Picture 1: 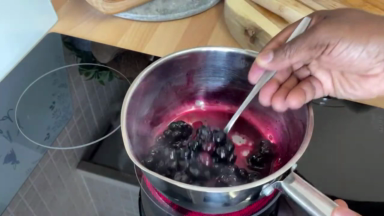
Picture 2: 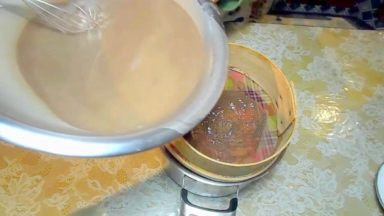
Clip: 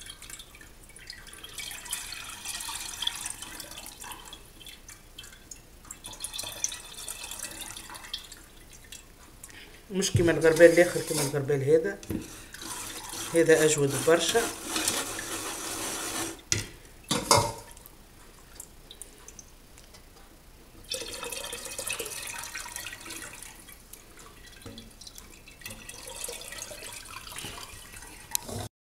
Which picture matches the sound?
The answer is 2